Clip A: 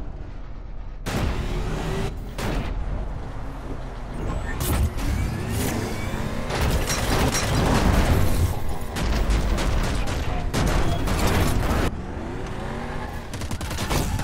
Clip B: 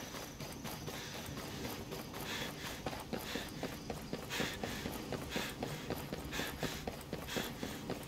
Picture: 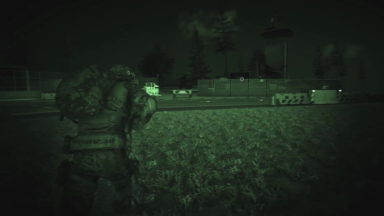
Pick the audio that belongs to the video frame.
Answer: B